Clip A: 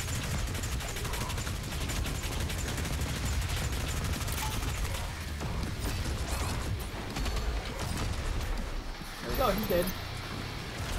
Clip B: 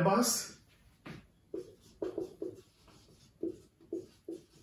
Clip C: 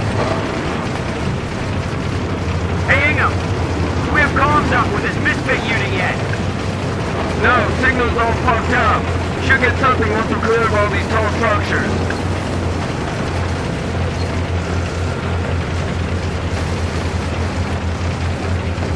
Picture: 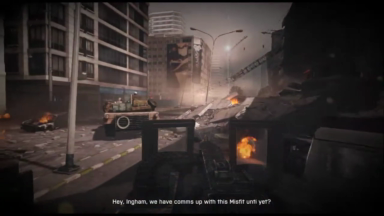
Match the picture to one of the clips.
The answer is C